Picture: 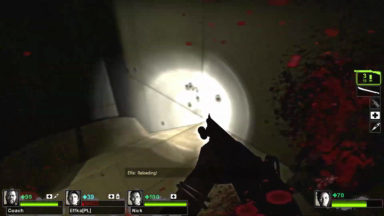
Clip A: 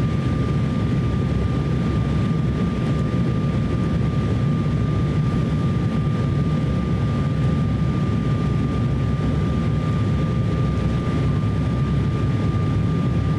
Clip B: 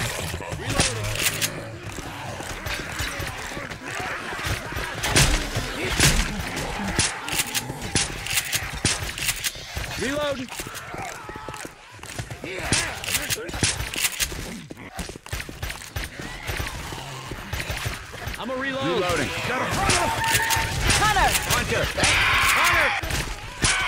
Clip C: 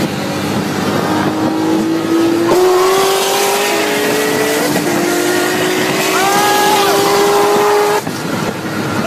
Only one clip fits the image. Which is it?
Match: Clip B